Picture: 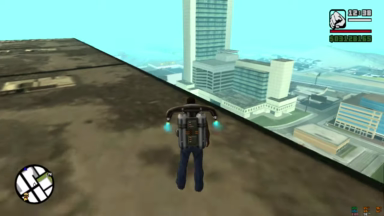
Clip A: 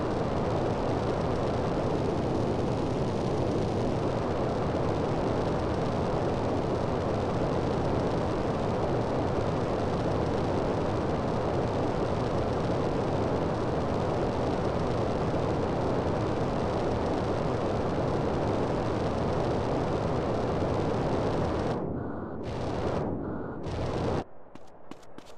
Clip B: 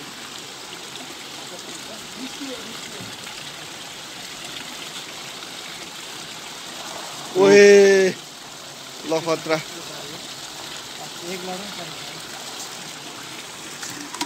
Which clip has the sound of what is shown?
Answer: A